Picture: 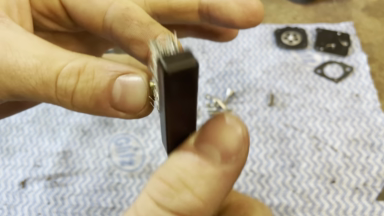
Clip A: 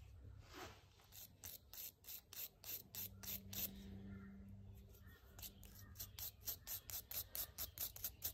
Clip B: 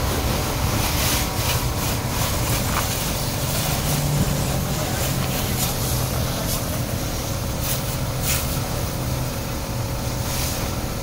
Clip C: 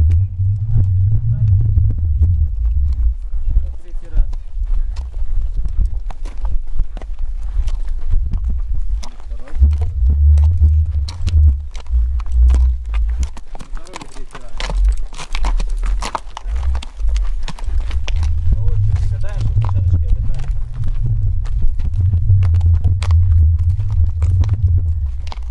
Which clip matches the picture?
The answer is A